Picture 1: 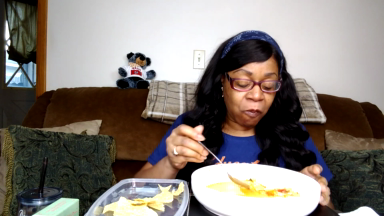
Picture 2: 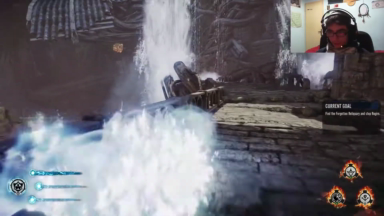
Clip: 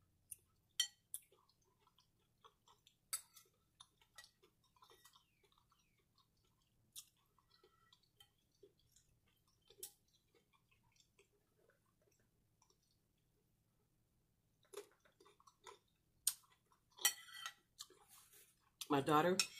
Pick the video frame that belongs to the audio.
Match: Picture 1